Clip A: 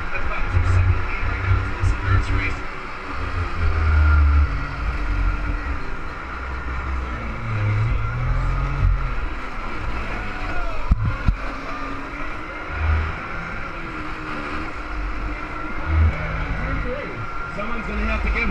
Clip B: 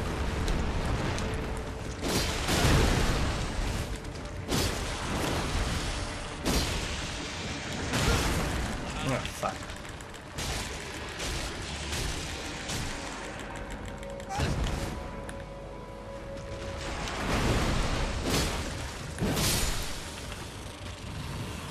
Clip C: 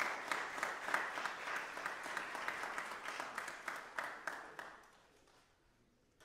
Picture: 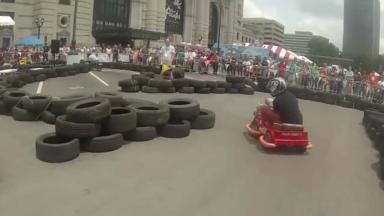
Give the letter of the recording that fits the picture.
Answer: A